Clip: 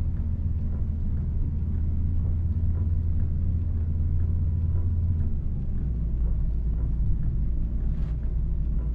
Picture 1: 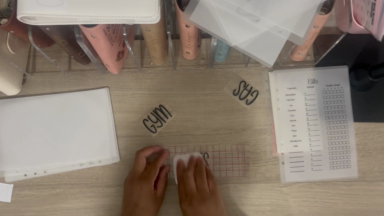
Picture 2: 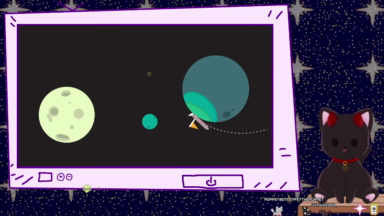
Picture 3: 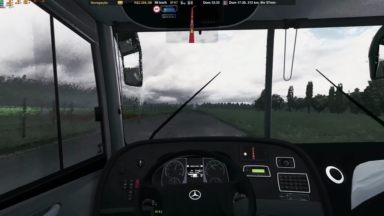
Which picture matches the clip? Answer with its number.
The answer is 3